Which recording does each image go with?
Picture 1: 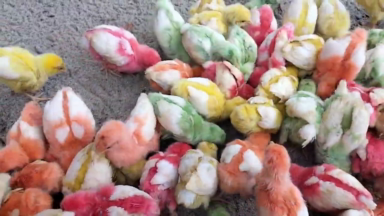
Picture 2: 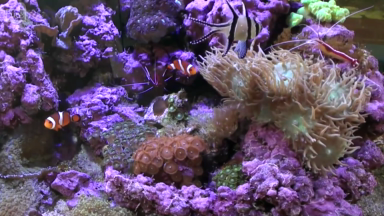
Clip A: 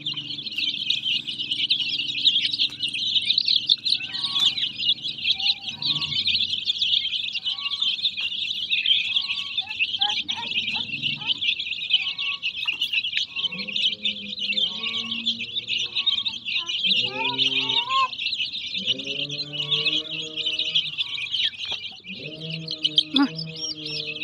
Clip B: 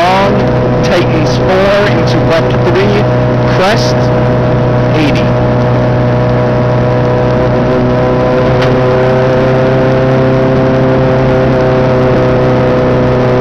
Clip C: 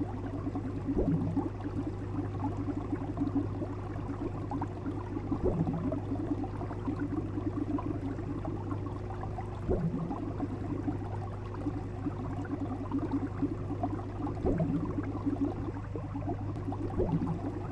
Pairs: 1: A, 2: C